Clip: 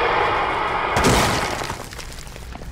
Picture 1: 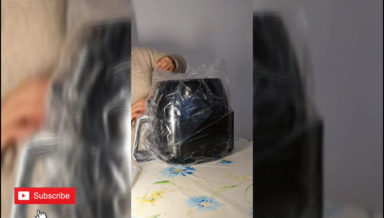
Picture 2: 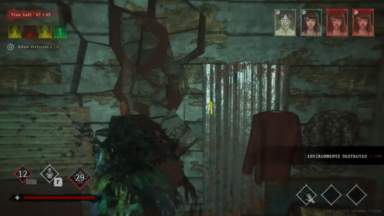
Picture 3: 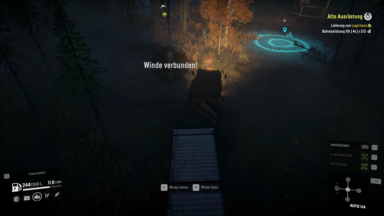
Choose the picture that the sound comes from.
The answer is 2